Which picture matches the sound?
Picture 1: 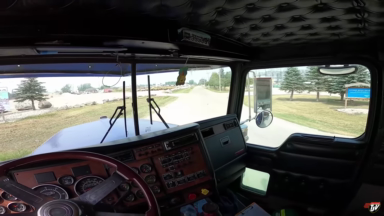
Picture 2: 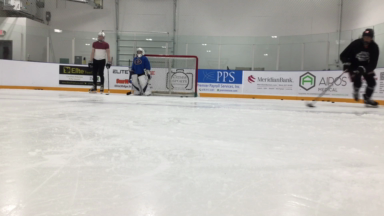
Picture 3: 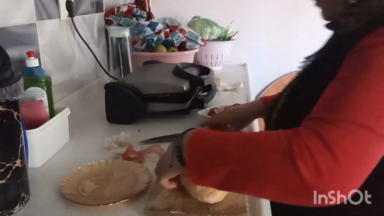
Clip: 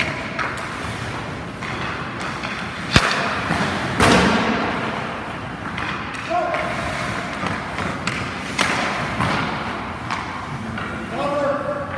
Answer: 2